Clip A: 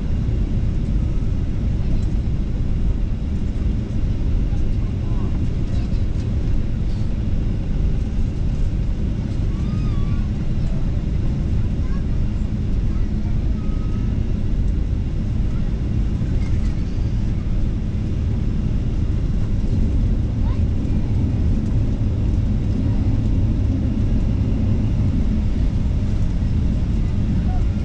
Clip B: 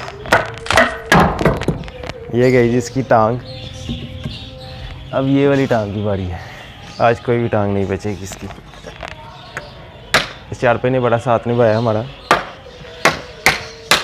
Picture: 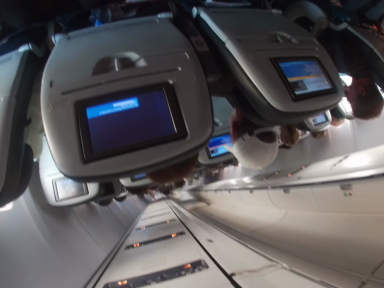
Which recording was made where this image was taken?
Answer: A